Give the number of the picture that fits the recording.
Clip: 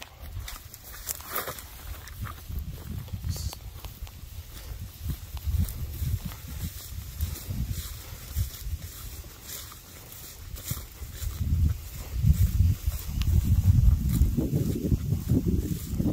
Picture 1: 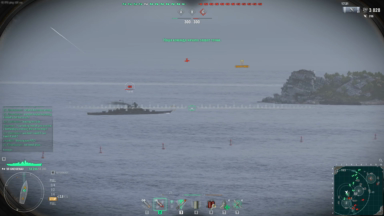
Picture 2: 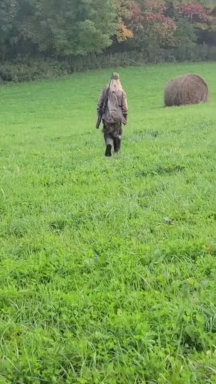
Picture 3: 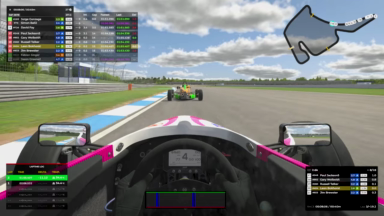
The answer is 2